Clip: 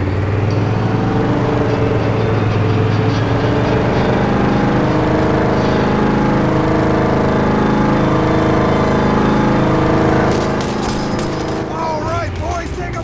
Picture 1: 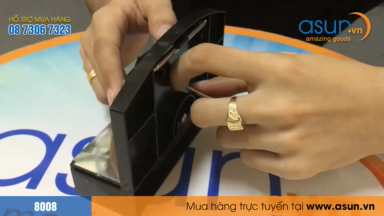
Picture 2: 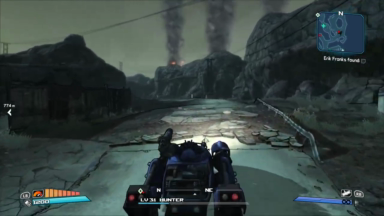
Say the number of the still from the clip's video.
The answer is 2